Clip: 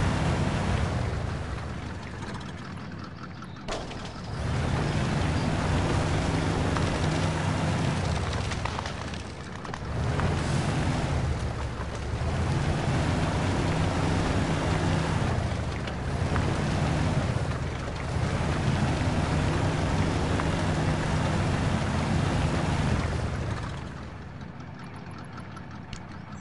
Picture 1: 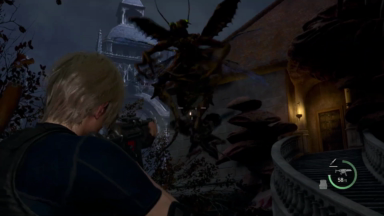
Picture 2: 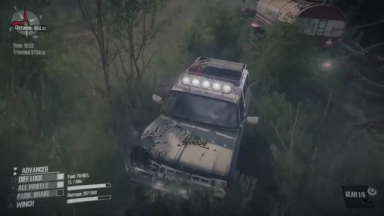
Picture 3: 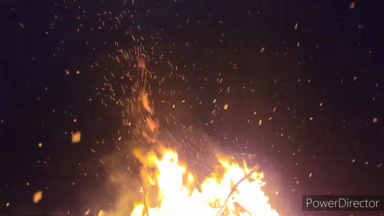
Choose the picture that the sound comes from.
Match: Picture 2